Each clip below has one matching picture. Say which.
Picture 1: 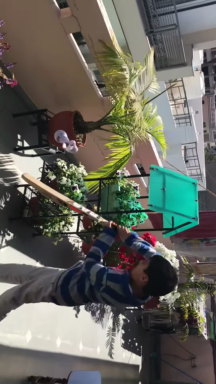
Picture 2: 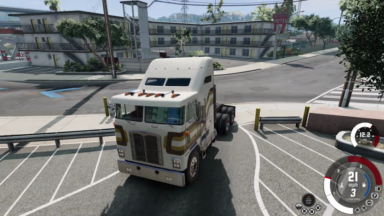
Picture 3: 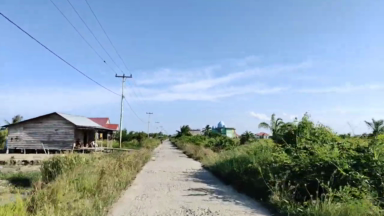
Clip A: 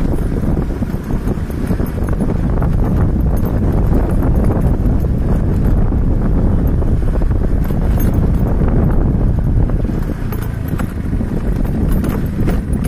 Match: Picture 3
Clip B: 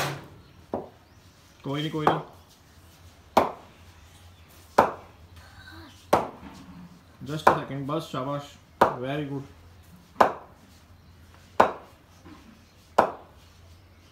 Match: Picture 1